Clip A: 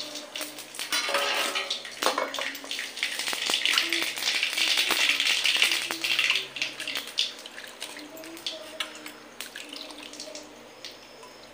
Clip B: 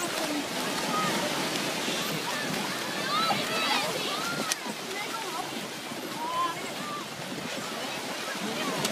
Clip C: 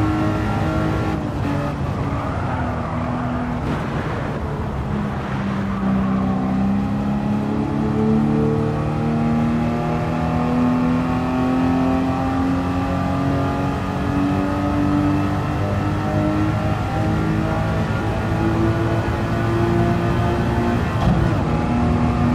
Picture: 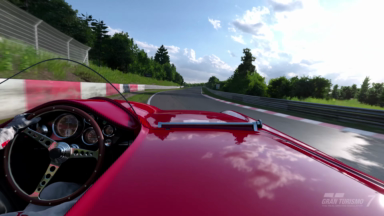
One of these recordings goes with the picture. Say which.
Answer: C